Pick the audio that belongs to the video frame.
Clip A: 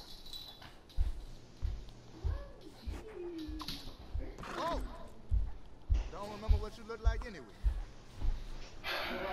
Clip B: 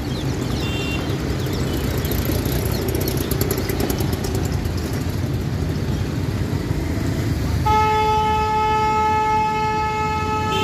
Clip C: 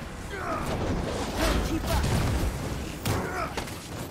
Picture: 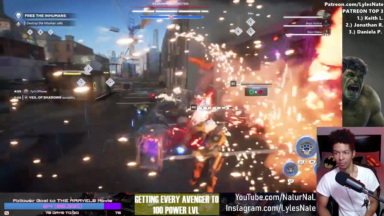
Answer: C